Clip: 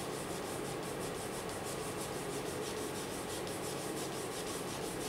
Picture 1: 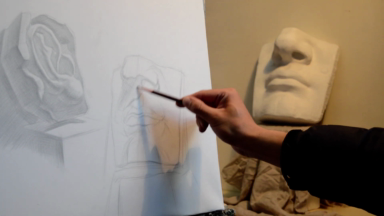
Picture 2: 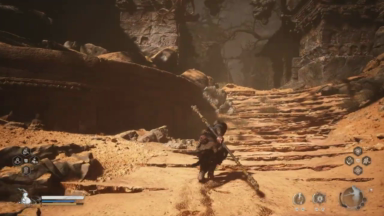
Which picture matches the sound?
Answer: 1